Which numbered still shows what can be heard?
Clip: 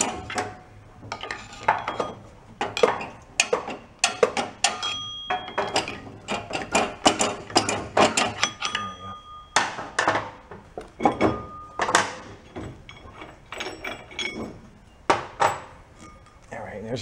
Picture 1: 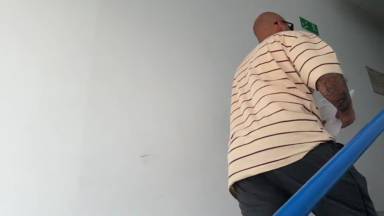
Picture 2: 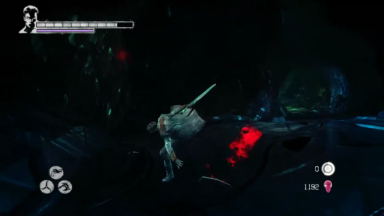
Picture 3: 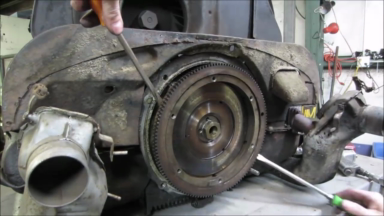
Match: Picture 3